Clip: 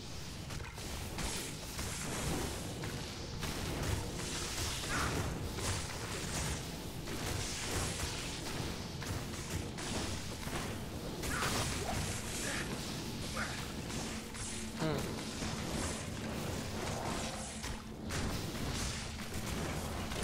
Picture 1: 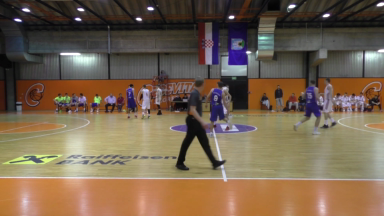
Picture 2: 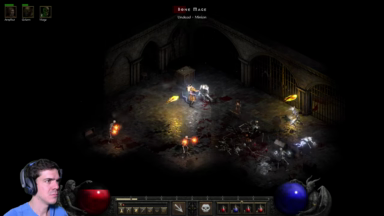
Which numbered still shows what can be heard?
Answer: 2